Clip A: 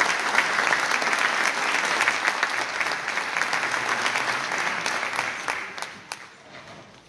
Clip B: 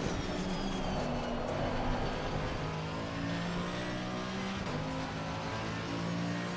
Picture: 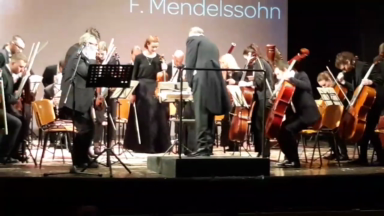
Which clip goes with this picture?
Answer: A